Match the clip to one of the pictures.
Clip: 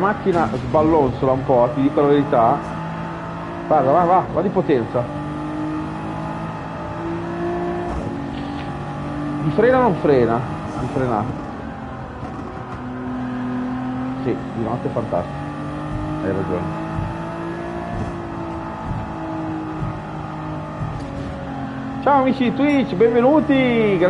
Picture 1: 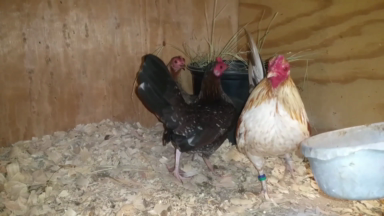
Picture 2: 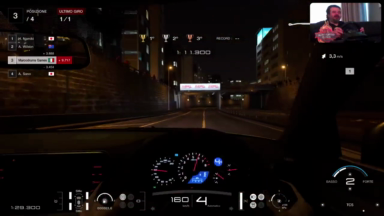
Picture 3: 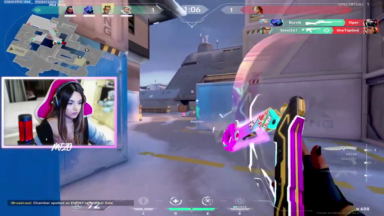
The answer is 2